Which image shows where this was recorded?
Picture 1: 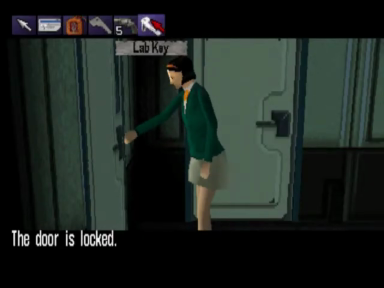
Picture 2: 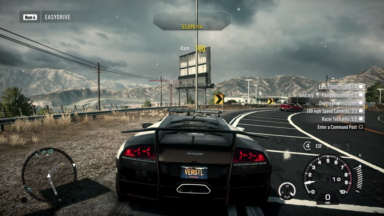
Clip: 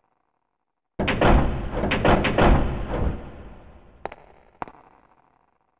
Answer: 1